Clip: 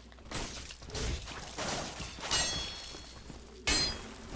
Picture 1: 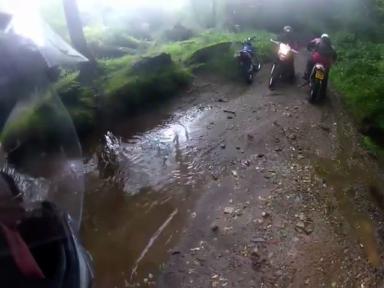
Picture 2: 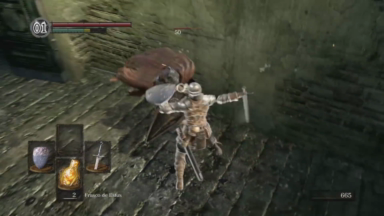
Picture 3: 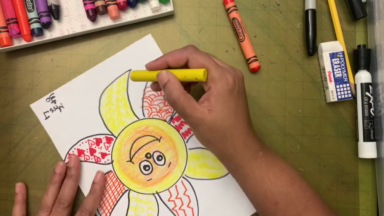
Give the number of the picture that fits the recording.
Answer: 2